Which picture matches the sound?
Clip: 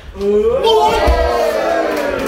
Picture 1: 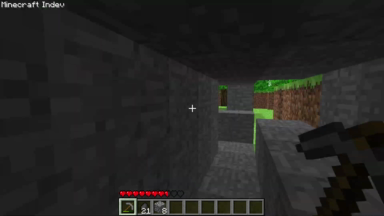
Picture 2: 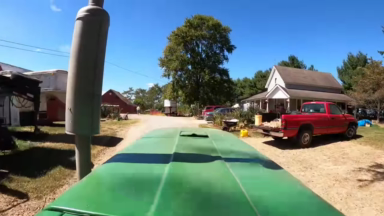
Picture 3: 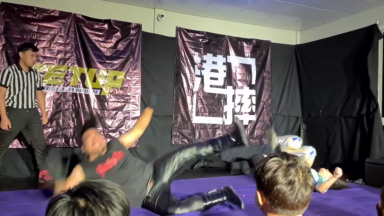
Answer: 3